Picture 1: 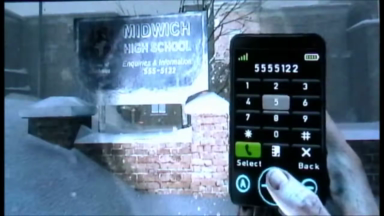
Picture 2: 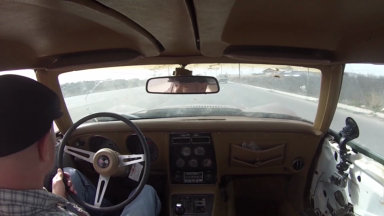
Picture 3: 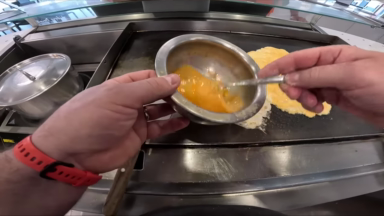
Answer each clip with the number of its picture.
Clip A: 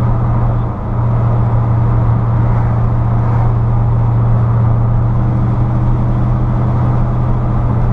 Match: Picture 2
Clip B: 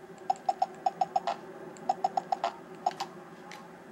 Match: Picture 1